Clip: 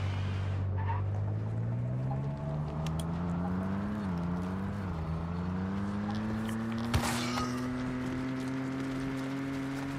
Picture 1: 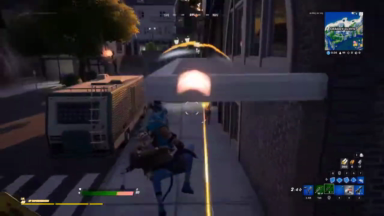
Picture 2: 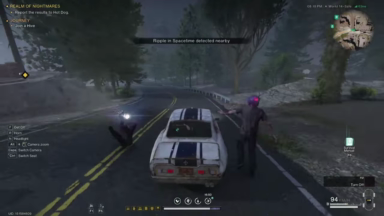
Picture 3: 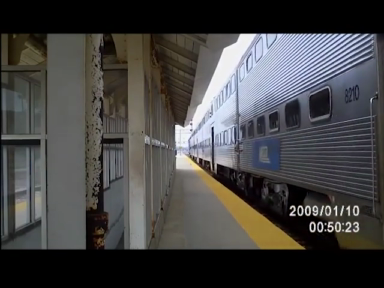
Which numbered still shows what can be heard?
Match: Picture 2